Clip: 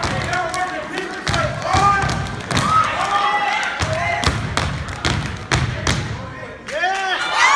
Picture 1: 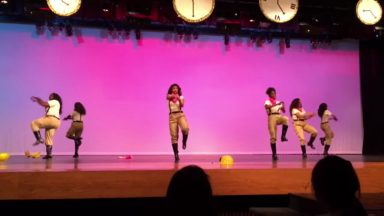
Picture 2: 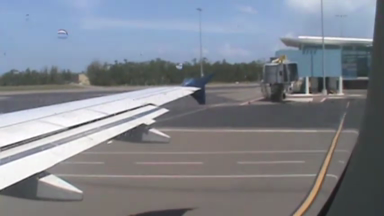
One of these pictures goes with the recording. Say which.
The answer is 1